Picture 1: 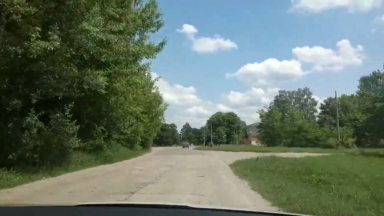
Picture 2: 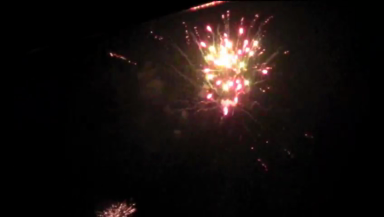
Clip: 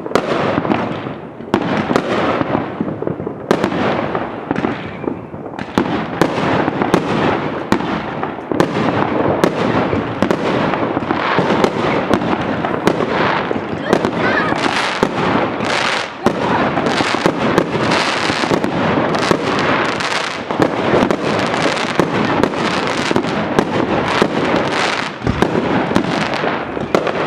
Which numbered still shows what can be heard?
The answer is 2